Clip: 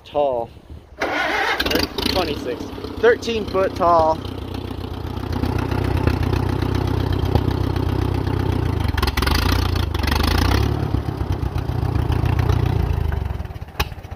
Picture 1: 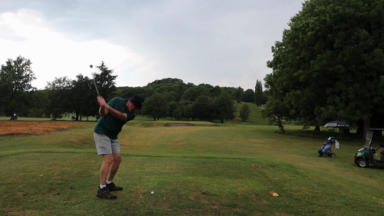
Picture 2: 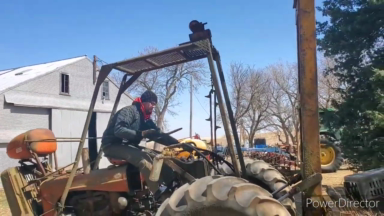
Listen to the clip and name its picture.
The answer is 2